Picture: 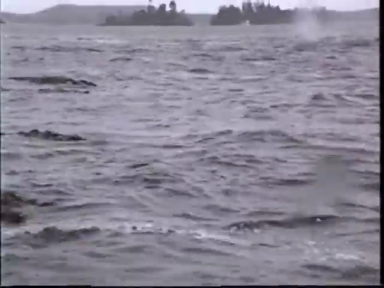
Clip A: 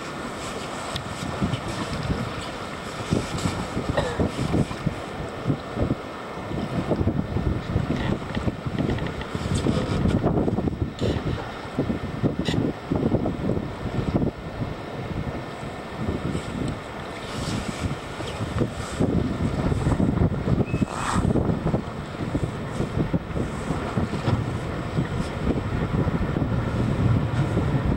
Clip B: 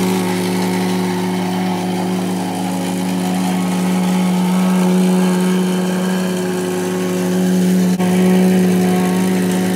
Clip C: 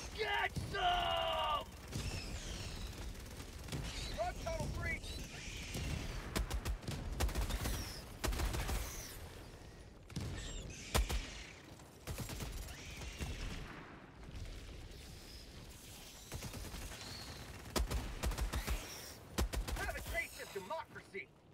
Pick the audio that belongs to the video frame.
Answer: A